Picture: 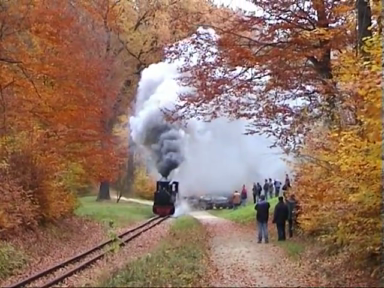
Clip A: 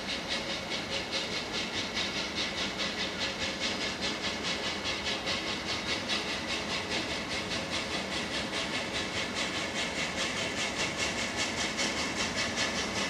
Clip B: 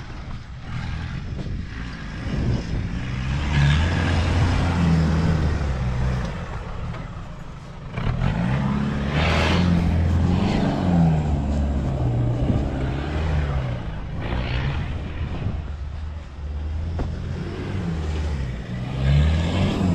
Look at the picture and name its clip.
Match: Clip A